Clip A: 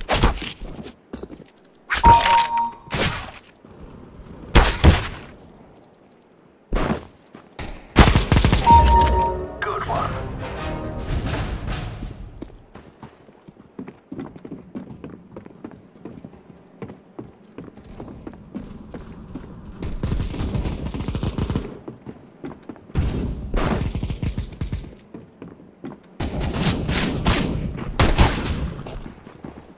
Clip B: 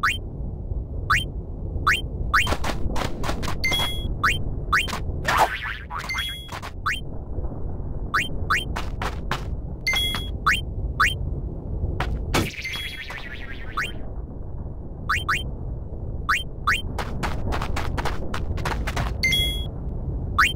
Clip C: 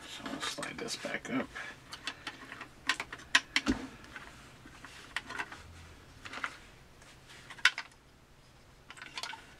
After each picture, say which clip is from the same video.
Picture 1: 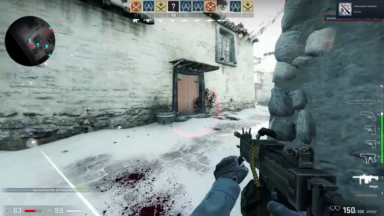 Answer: A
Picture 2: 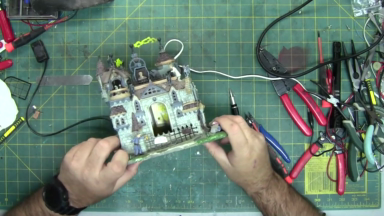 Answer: C